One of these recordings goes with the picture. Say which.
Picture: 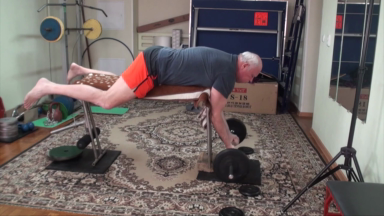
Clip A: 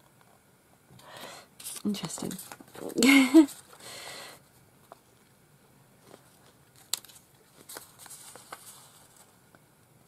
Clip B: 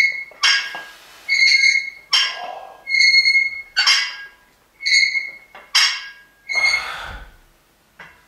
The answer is B